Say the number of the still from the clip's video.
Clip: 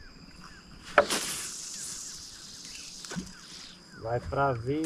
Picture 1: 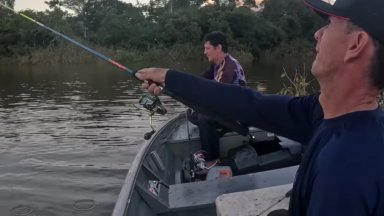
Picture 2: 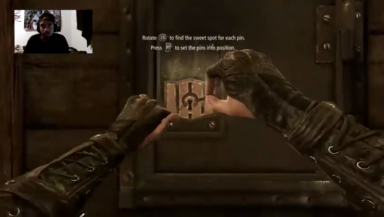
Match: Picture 1